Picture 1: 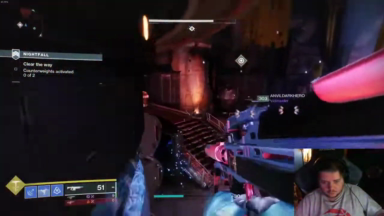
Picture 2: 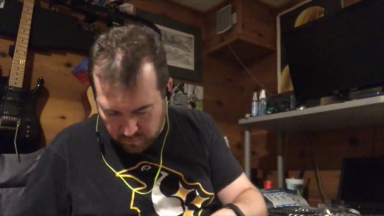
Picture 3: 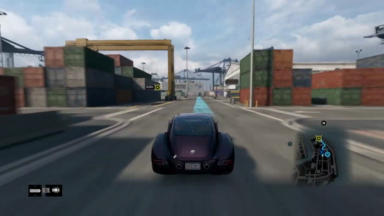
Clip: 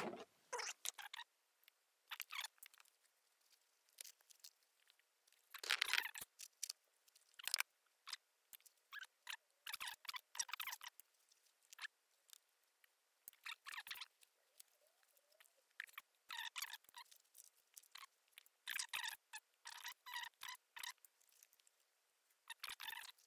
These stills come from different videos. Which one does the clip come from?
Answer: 2